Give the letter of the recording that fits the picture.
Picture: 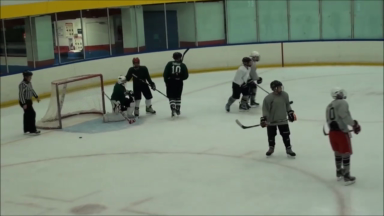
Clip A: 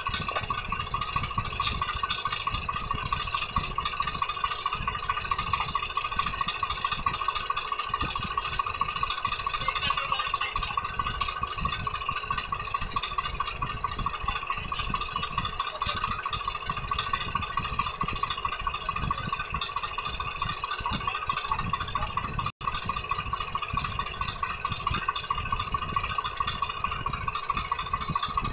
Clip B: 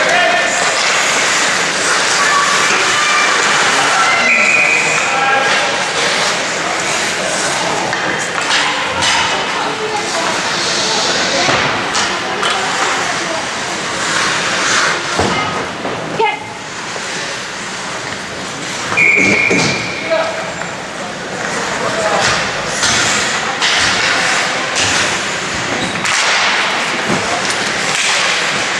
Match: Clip B